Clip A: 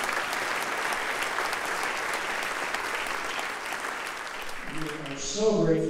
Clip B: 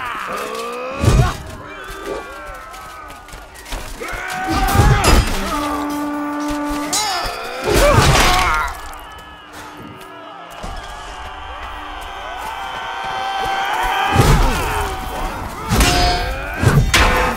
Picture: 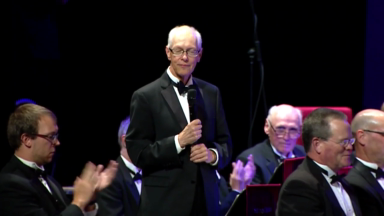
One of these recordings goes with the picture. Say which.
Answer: A